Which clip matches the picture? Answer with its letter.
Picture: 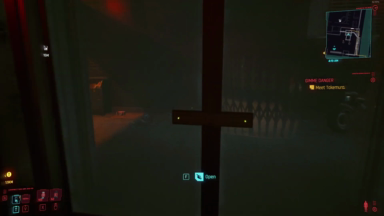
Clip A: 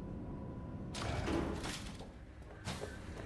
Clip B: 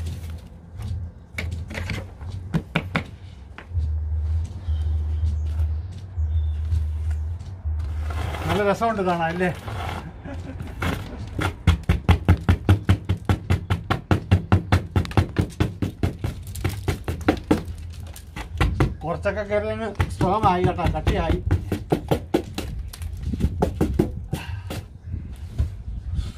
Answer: A